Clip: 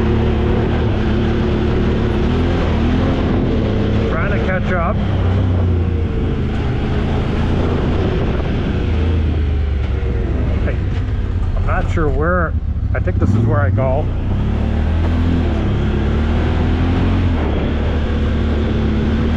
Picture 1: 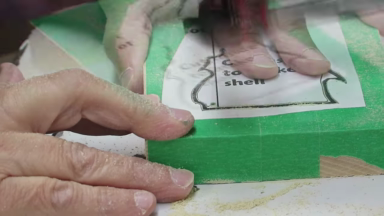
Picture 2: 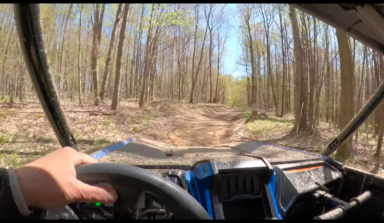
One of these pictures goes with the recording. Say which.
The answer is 2